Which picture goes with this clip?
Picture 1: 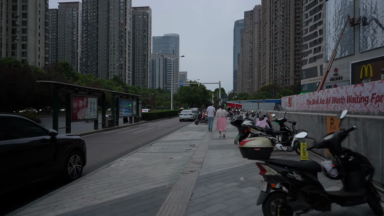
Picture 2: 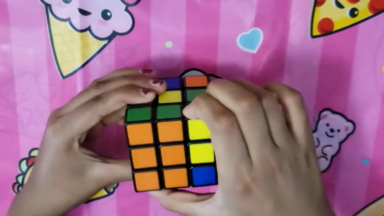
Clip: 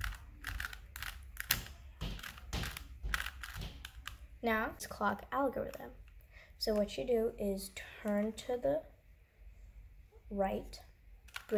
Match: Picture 2